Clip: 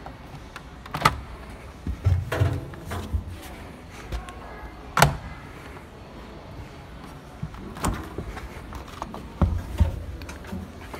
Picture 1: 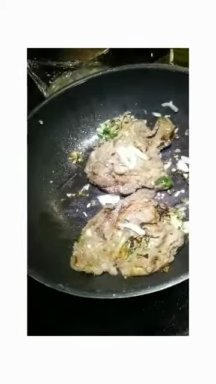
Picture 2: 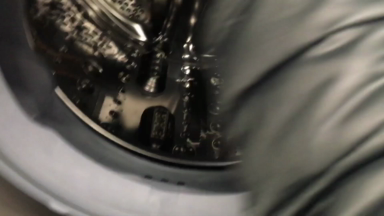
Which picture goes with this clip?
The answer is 2